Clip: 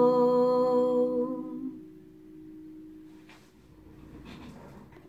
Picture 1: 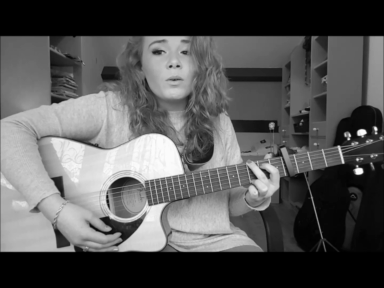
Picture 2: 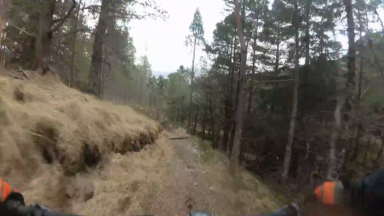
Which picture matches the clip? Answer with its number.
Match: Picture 1